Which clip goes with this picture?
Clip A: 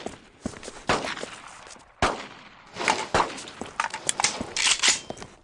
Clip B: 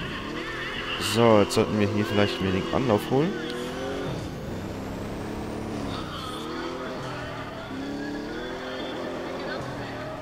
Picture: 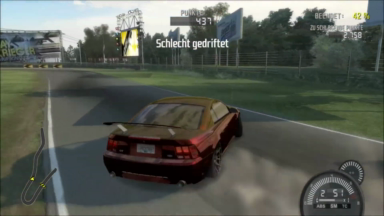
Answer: B